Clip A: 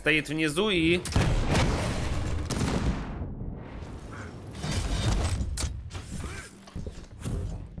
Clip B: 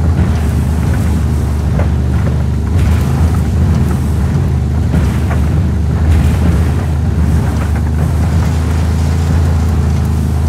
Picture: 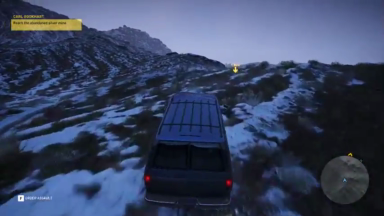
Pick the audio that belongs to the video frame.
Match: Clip B